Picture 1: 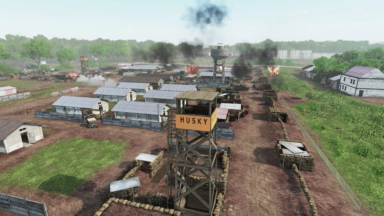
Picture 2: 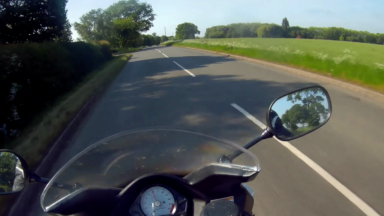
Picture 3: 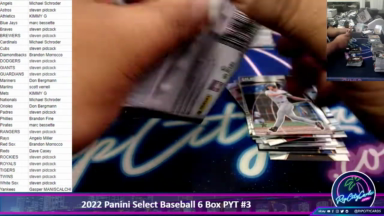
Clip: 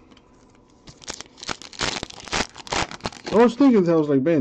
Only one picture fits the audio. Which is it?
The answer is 3